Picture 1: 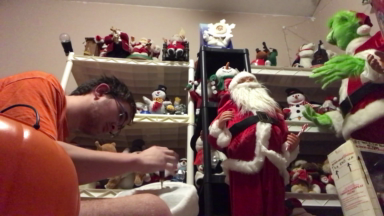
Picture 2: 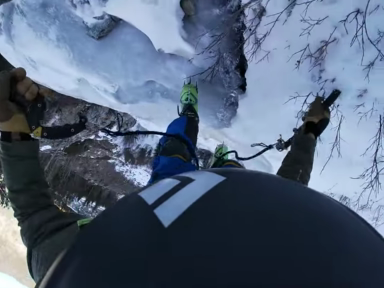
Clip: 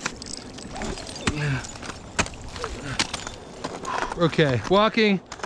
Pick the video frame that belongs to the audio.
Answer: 2